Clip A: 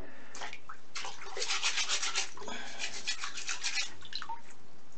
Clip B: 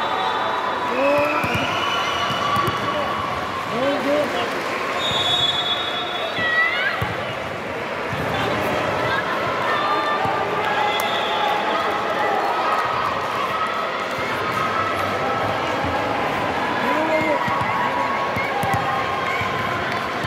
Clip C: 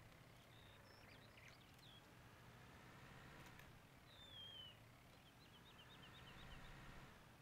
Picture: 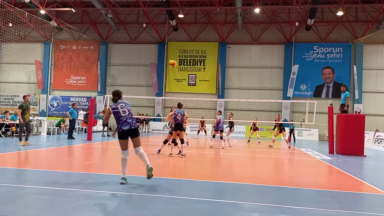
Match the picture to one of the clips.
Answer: B